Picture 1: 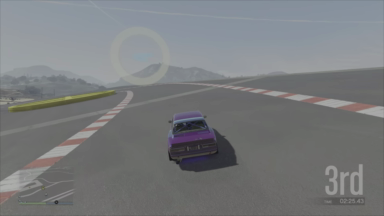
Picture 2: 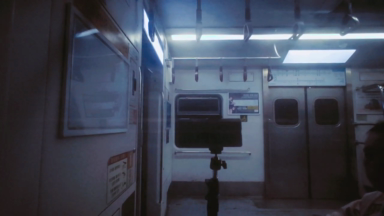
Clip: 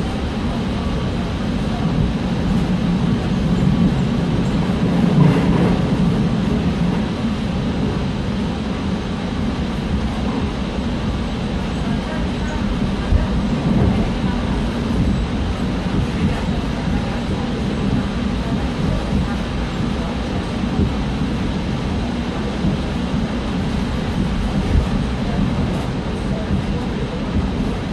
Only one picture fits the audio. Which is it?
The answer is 2